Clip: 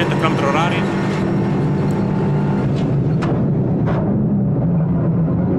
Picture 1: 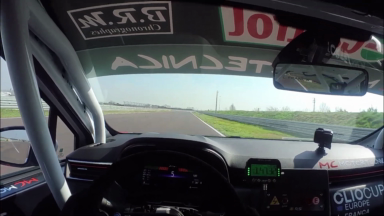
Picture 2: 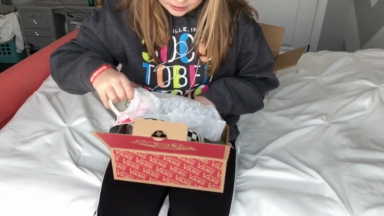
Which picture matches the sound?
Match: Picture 1